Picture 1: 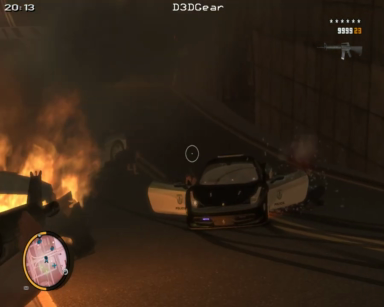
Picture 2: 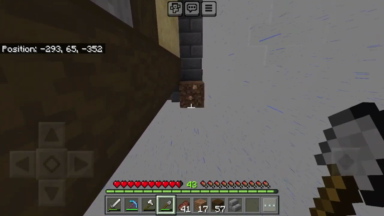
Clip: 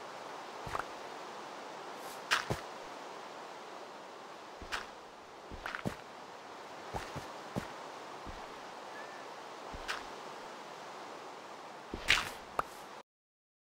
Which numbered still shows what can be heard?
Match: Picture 2